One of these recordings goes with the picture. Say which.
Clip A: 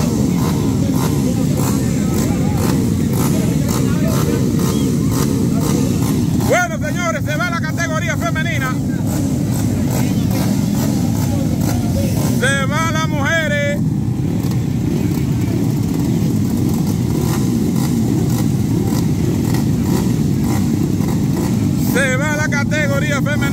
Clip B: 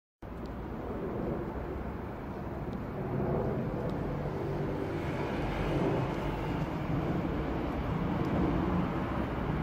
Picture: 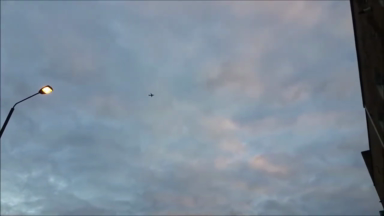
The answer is B